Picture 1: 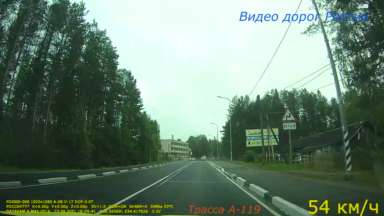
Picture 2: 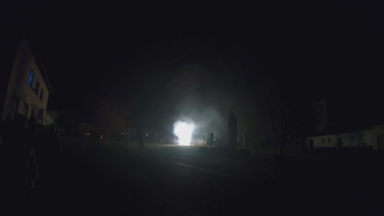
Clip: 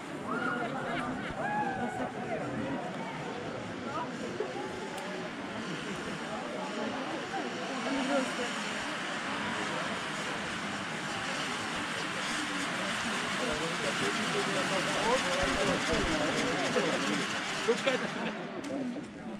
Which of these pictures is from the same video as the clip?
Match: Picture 2